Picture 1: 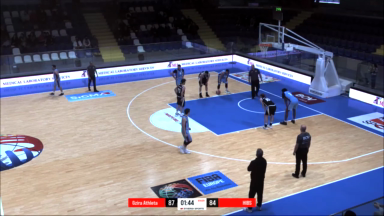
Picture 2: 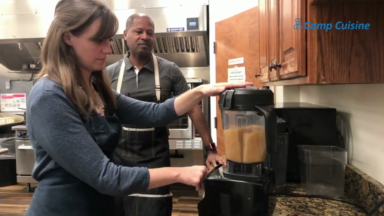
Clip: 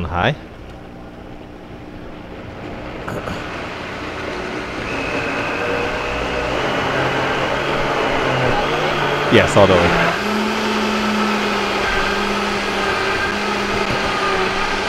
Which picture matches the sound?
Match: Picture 2